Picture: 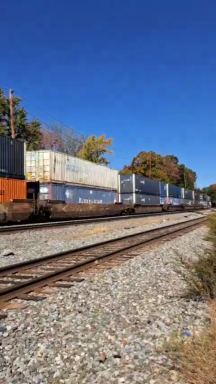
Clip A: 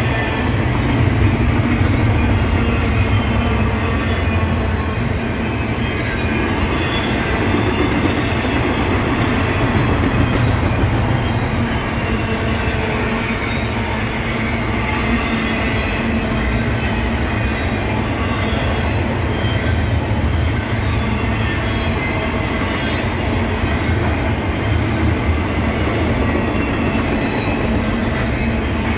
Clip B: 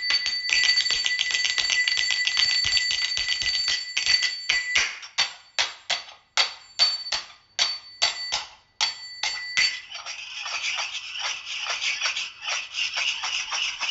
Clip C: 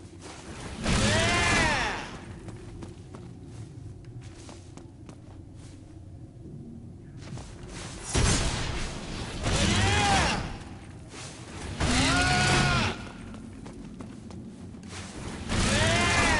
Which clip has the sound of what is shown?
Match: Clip A